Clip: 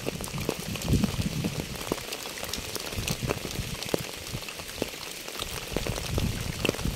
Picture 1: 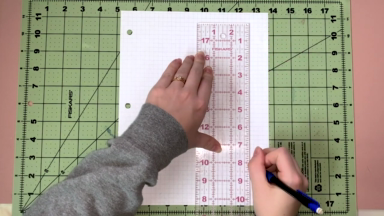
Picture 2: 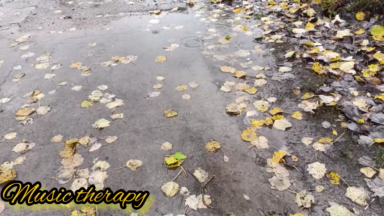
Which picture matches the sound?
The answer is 2